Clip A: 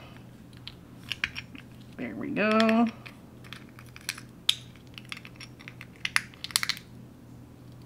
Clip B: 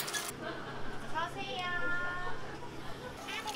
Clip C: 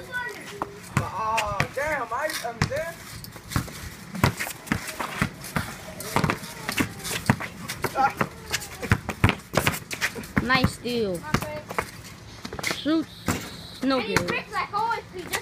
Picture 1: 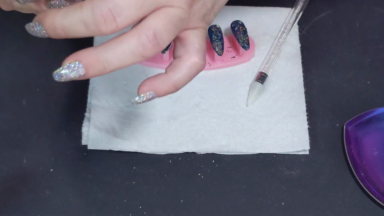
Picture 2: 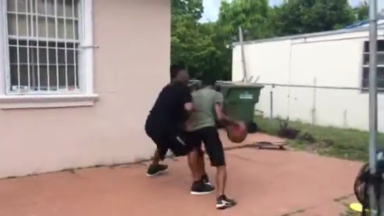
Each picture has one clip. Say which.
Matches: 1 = A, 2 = C